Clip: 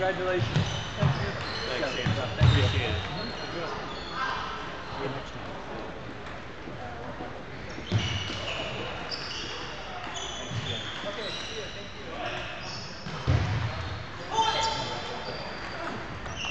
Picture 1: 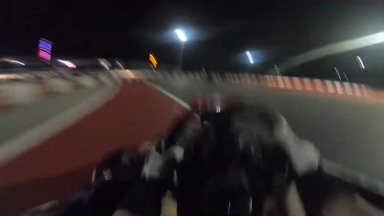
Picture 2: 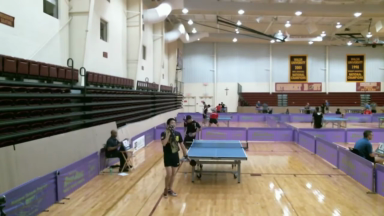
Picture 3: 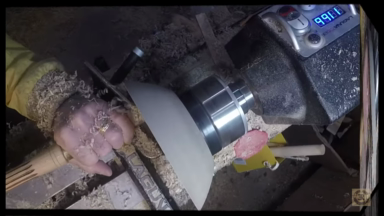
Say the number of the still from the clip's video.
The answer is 2